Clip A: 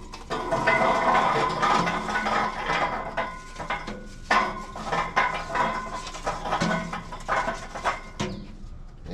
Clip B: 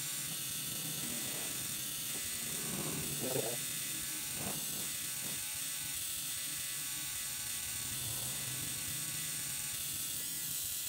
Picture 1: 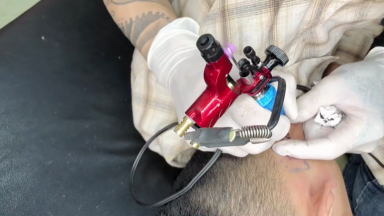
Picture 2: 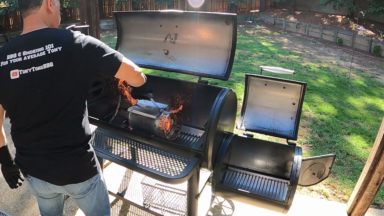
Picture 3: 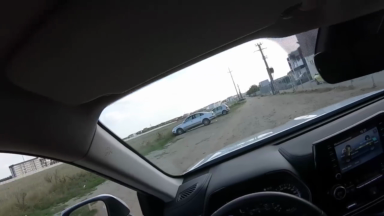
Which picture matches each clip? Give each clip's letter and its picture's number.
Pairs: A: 2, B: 1